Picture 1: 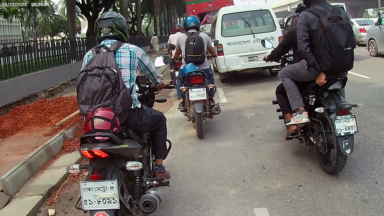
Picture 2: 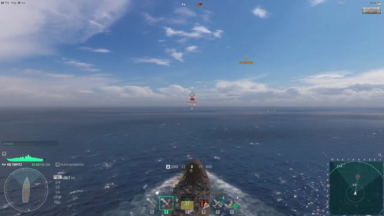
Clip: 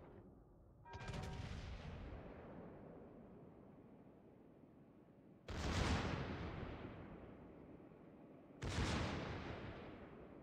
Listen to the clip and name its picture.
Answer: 2